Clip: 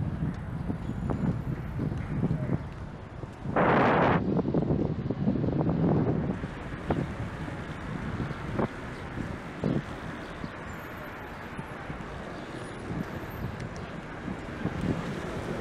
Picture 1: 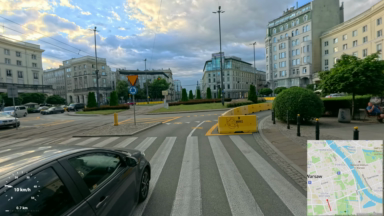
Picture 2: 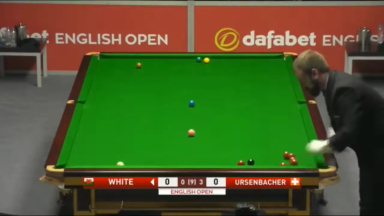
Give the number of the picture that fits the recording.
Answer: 1